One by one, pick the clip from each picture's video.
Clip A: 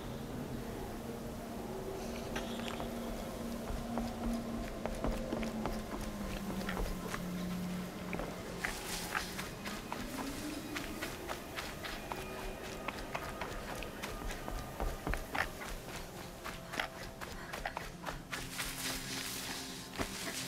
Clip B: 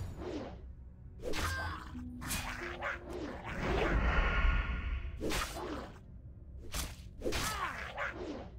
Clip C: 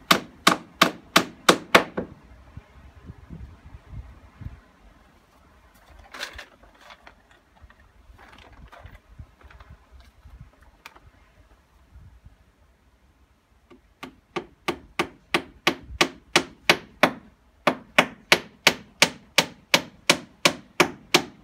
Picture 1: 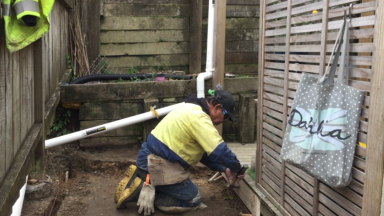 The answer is C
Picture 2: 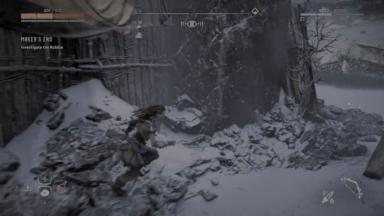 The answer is A